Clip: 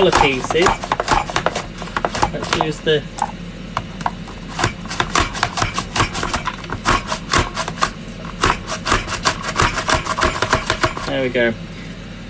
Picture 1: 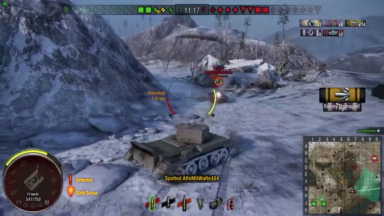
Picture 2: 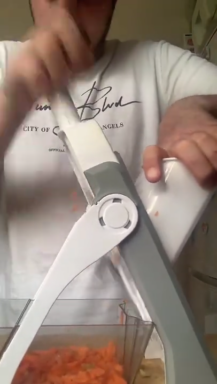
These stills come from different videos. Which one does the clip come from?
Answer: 2